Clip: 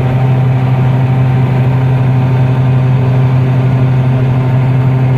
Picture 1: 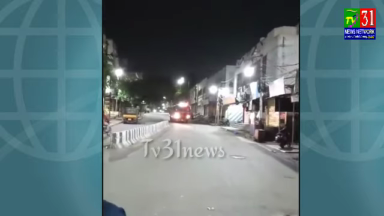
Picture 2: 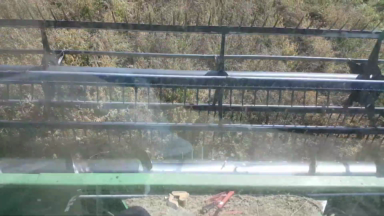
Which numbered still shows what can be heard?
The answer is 2